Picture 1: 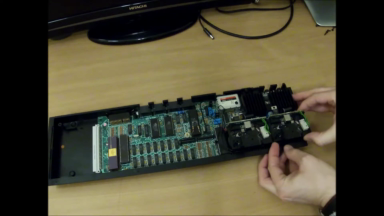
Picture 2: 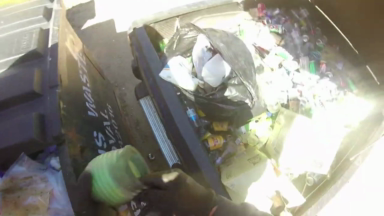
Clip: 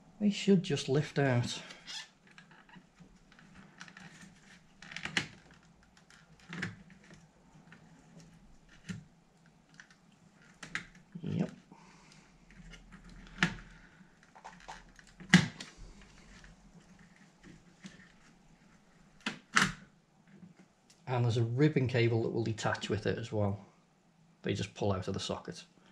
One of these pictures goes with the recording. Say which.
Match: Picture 1